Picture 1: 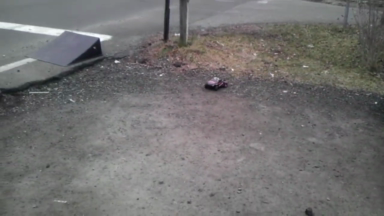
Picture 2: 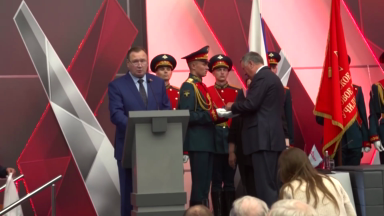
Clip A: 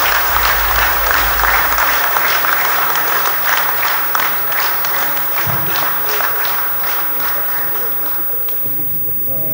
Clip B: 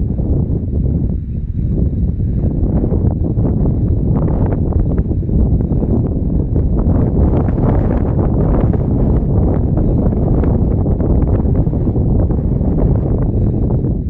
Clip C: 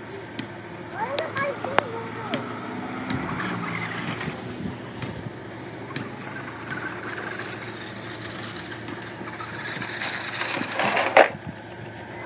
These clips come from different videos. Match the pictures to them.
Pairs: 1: C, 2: A